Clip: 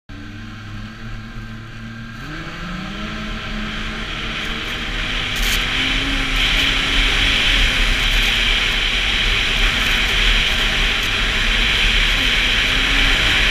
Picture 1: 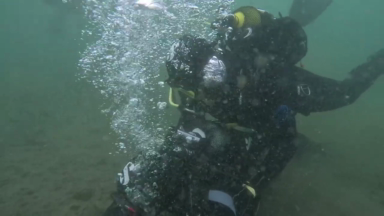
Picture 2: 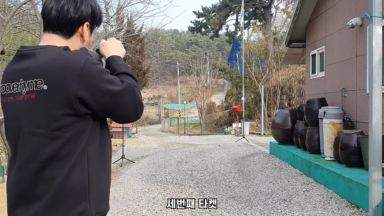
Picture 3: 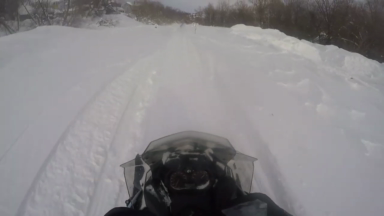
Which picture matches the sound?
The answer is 3